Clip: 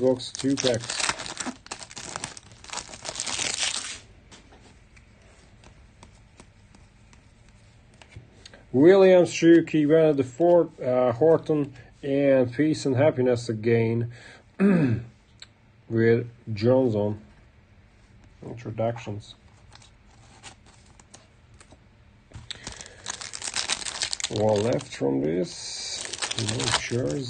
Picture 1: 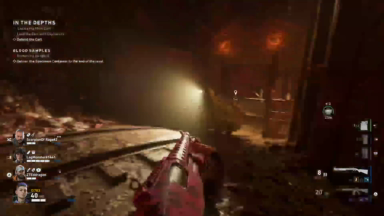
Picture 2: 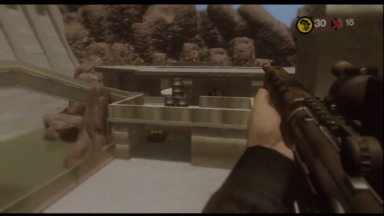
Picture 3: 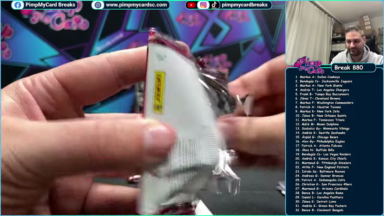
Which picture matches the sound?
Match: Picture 3